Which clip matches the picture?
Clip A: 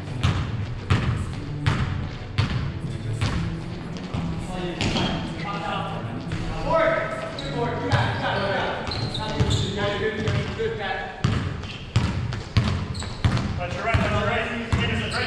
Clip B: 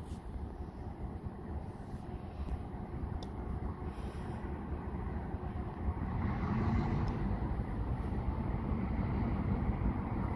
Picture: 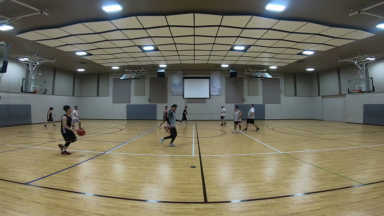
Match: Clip A